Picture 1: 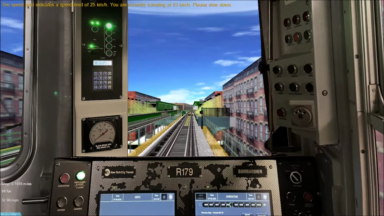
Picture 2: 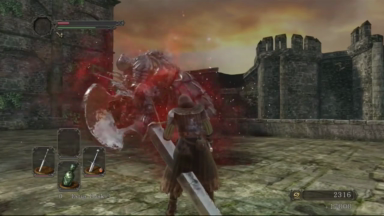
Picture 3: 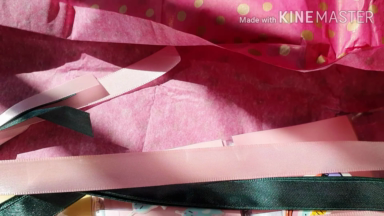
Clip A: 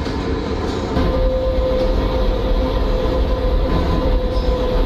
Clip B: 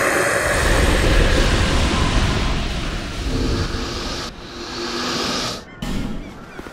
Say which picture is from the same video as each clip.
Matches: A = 1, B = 2